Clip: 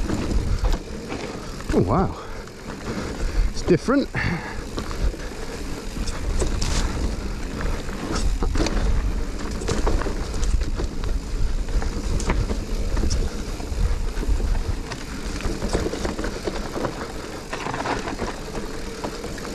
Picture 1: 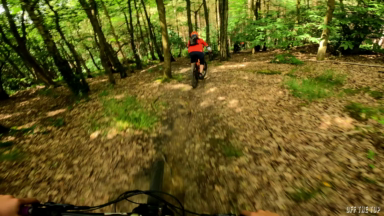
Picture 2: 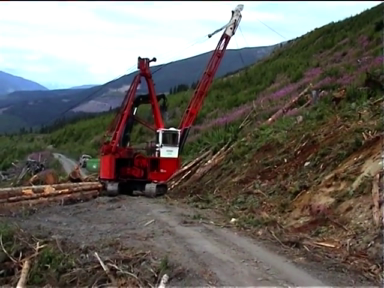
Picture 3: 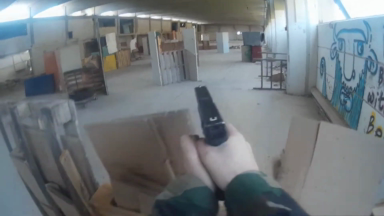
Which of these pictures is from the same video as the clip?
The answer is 1